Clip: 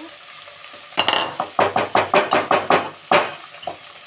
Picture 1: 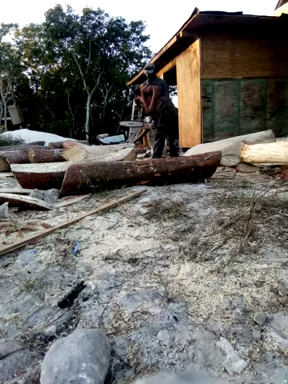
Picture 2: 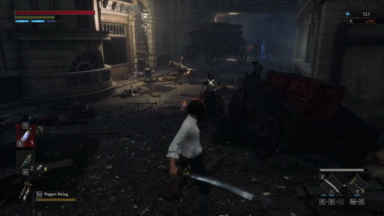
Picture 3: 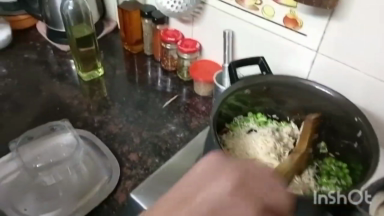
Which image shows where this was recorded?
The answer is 3